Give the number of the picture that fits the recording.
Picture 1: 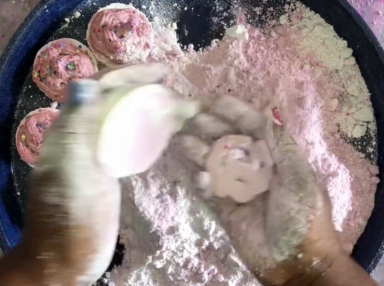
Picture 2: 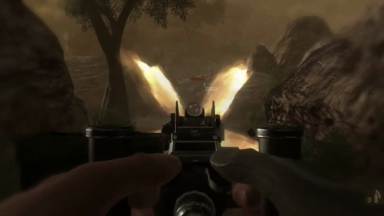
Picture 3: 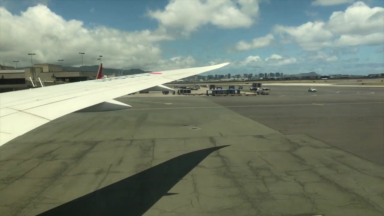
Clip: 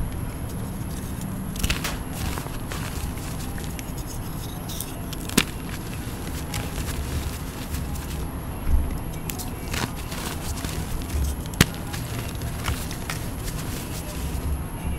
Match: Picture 1